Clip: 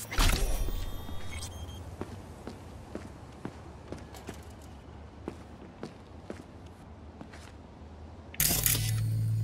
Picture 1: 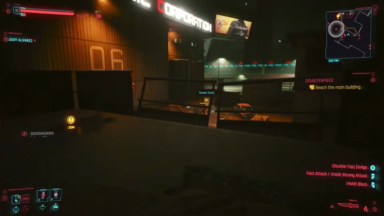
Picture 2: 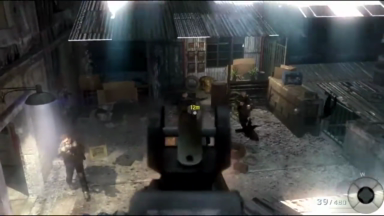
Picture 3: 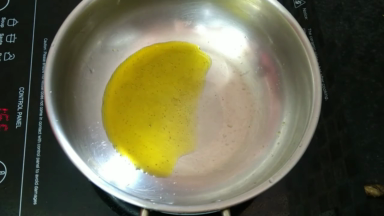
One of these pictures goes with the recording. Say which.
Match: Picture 1